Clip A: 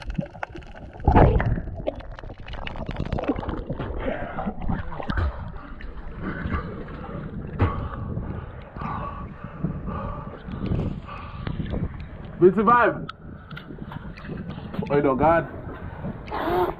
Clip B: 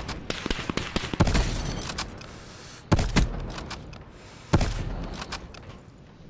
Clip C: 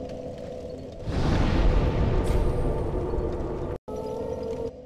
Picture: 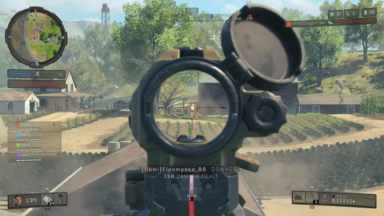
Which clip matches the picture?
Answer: B